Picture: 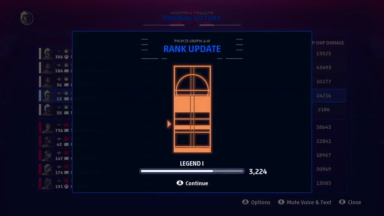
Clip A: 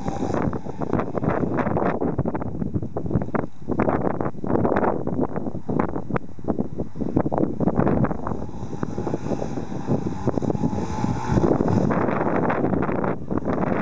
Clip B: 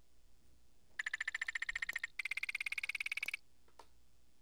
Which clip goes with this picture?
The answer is B